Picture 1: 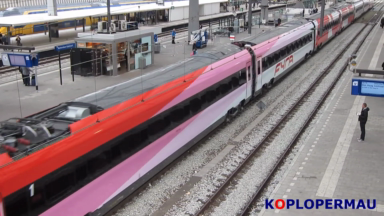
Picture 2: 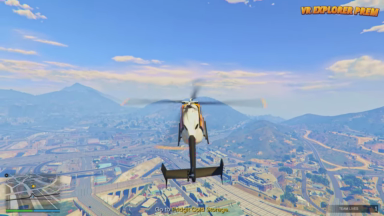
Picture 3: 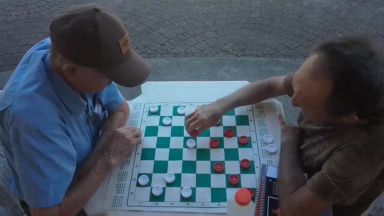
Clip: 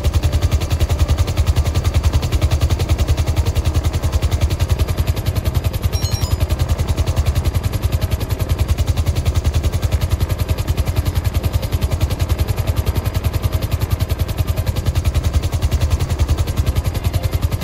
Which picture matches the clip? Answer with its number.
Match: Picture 2